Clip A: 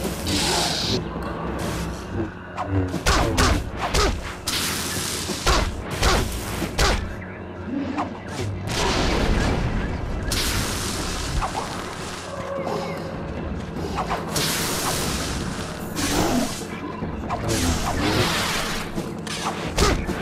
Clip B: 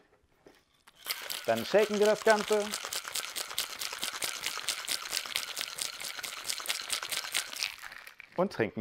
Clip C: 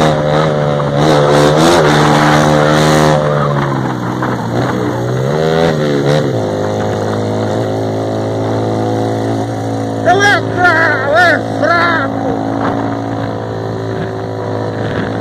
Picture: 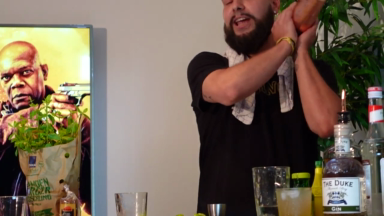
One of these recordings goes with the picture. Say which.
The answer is B